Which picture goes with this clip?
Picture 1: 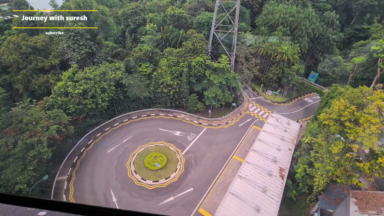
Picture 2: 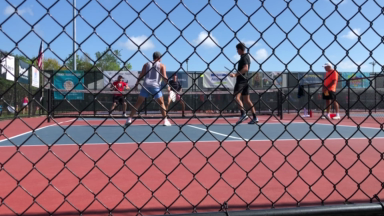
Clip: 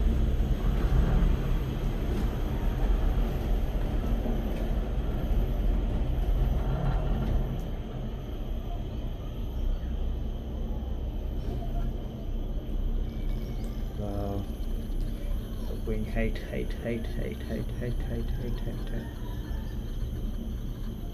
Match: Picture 1